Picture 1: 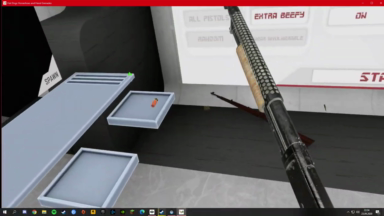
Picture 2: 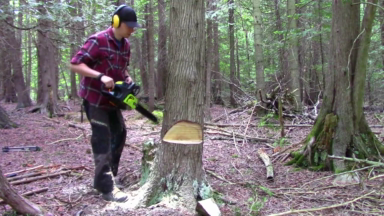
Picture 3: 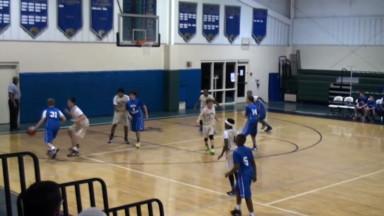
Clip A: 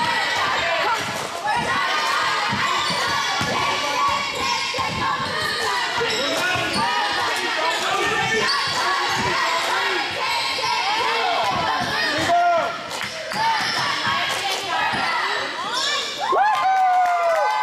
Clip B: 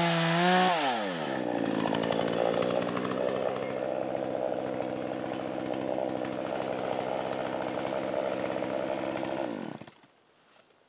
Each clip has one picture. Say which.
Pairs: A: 3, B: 2